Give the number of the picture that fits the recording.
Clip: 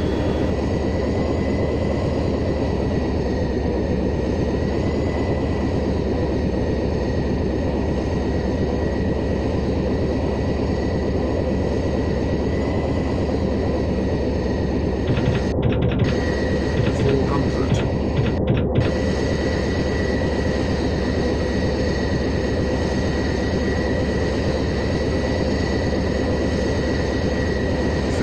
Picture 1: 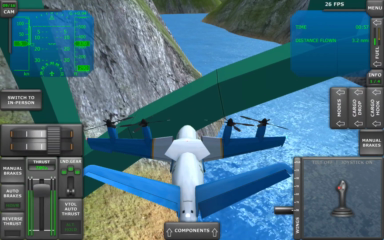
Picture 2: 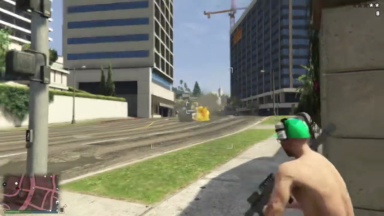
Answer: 1